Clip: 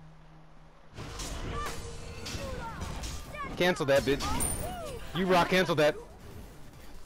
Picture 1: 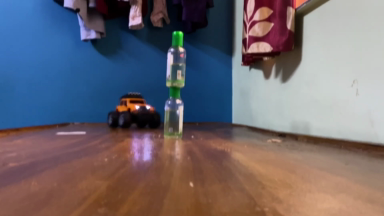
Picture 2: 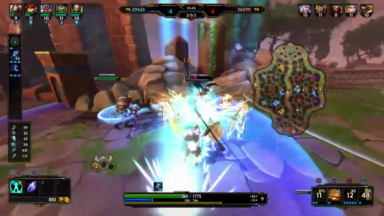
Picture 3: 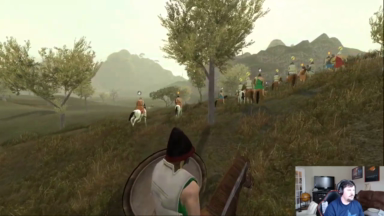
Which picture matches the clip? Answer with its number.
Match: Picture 2